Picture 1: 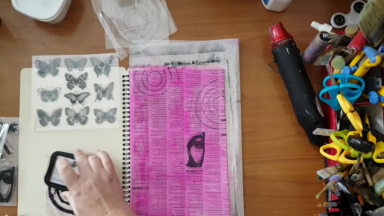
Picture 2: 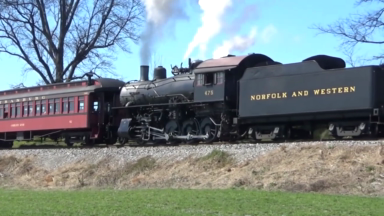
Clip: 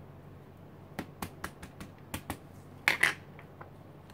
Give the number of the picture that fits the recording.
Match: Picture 1